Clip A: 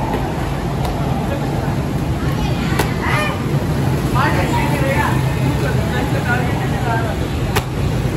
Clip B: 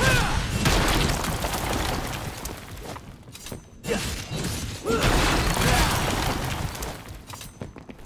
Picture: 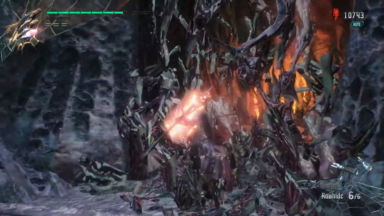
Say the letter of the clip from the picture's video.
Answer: B